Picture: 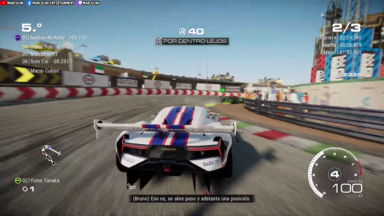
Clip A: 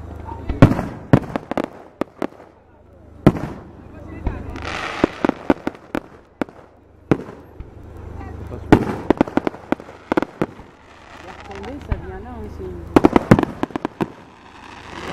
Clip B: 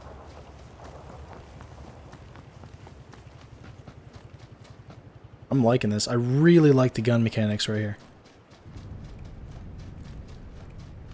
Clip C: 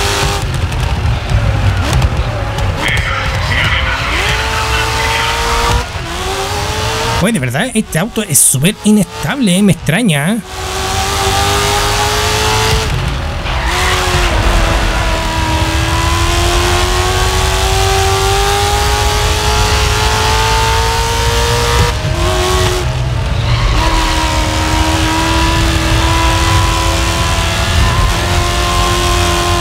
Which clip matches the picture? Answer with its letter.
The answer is C